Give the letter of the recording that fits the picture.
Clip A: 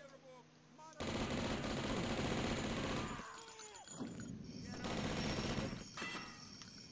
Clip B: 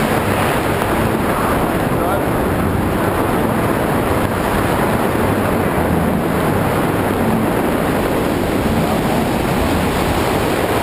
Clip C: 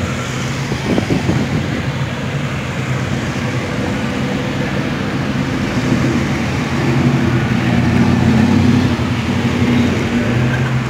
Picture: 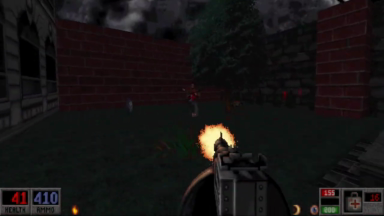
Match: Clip A